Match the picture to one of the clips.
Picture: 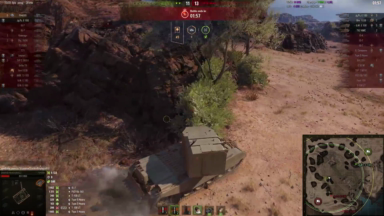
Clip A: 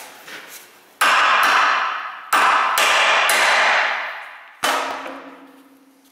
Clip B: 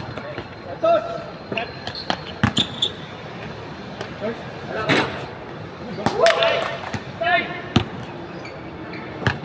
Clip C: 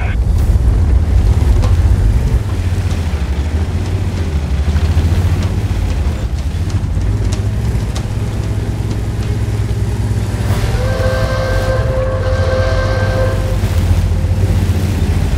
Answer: C